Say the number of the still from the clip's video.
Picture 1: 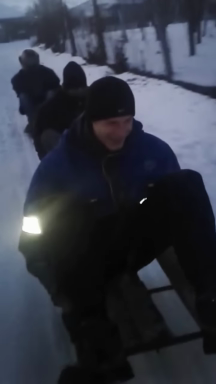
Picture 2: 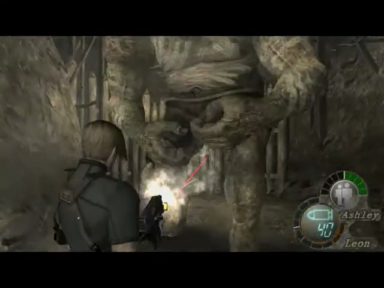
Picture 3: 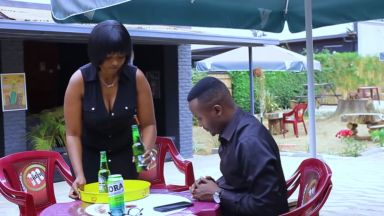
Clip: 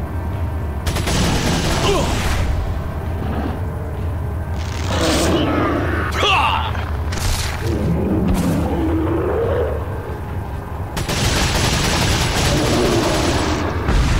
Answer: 2